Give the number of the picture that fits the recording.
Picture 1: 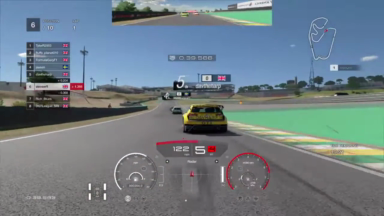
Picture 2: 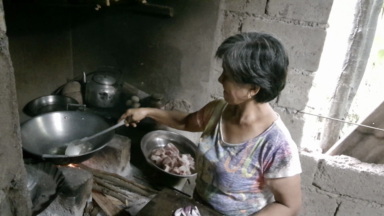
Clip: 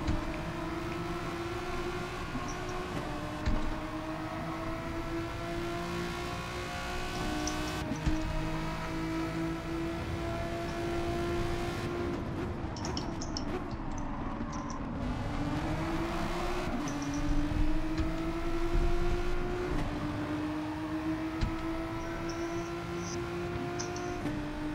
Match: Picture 1